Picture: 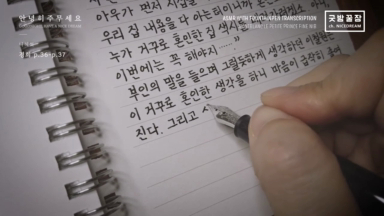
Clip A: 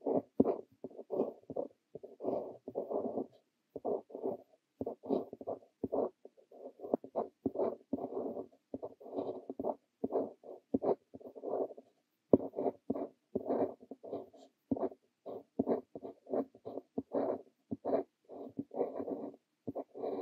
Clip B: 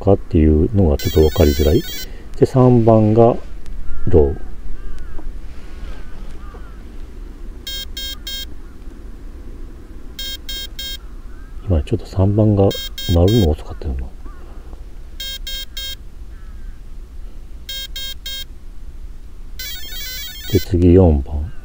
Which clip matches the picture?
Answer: A